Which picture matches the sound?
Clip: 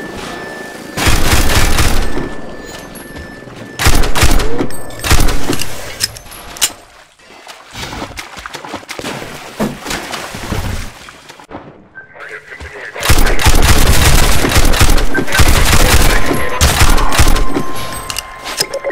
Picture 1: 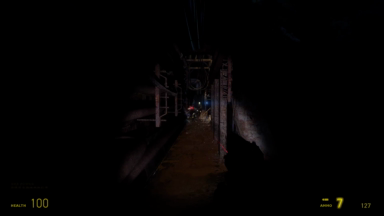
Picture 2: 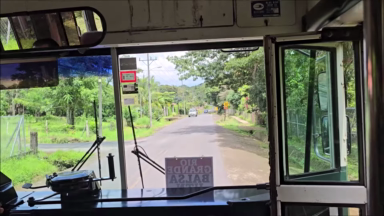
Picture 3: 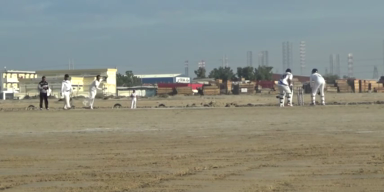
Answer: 1